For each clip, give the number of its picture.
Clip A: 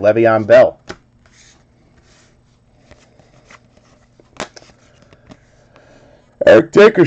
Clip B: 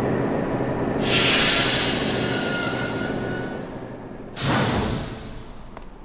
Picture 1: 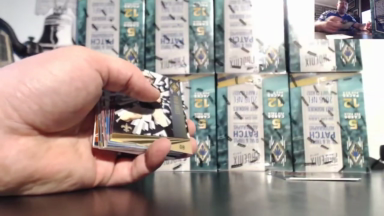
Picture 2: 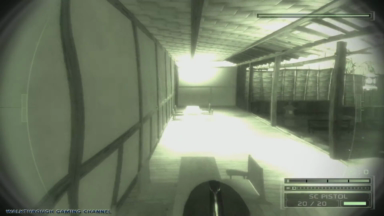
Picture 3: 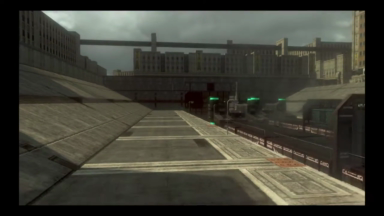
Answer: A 1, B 3